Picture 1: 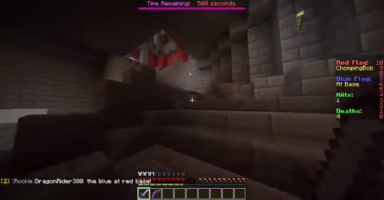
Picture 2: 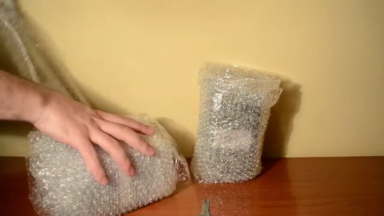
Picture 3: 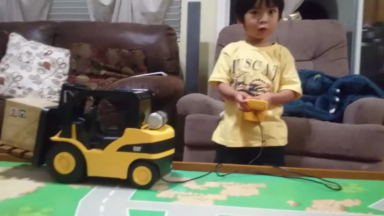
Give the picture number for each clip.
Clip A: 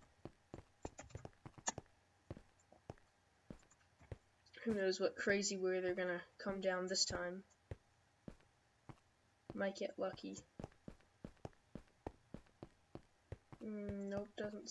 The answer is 1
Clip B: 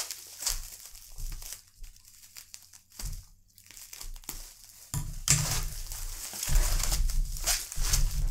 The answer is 2